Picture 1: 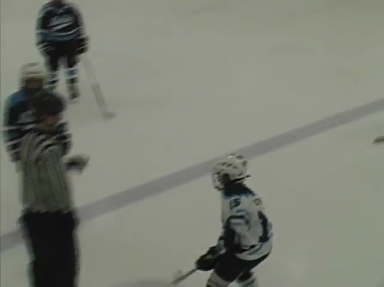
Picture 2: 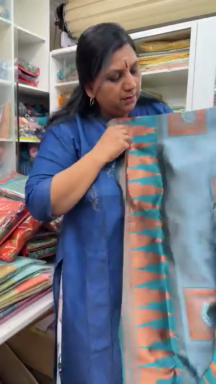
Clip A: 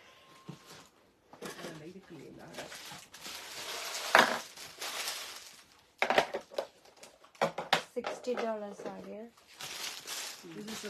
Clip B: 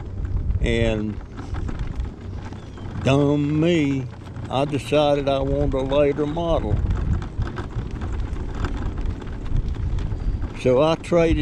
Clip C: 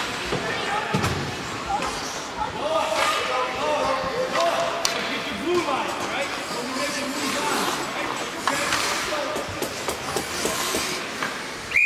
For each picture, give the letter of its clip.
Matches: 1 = C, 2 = A